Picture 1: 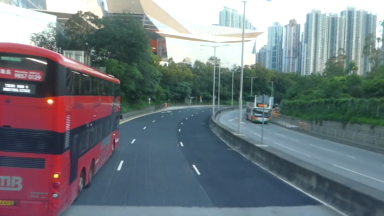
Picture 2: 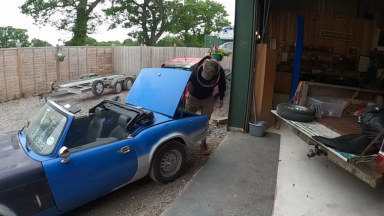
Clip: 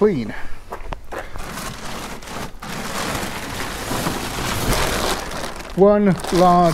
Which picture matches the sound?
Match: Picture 2